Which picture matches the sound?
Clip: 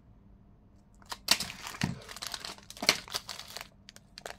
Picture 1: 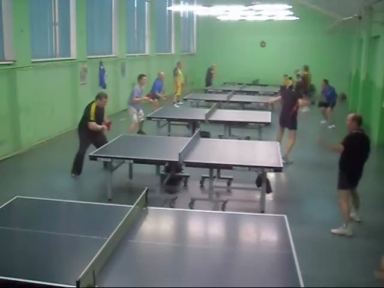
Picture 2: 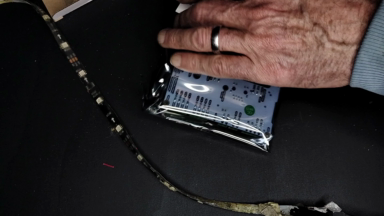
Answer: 2